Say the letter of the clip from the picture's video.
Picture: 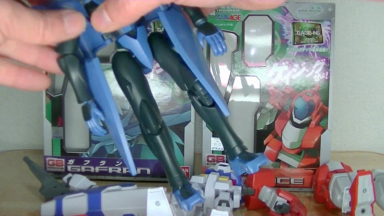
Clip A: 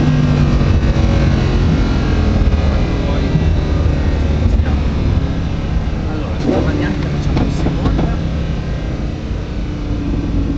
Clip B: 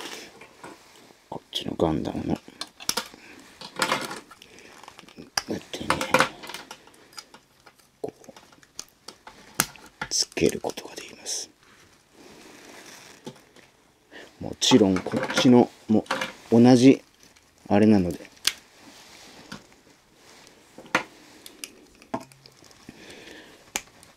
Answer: B